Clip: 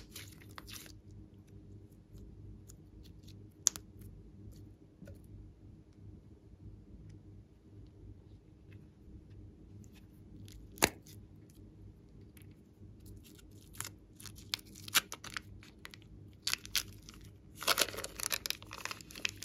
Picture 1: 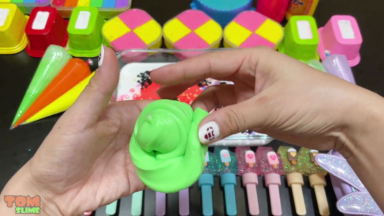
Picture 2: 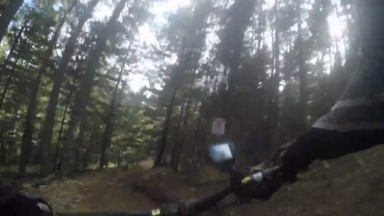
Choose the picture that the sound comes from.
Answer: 1